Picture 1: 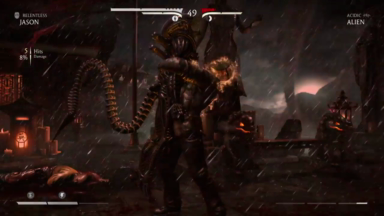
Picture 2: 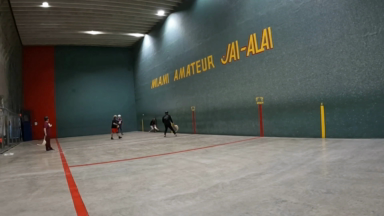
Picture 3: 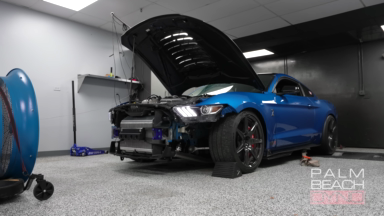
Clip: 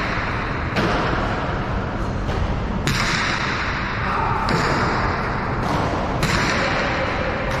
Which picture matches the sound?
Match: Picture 2